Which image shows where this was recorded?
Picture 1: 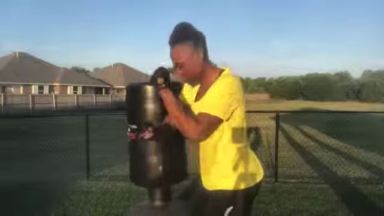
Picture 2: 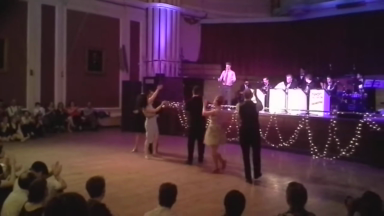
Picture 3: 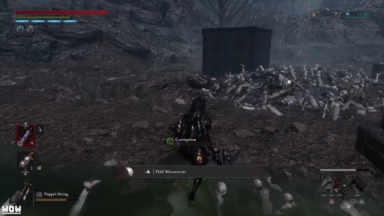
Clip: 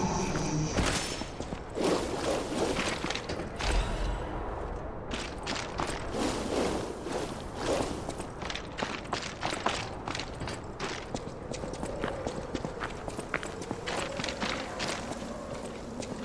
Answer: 3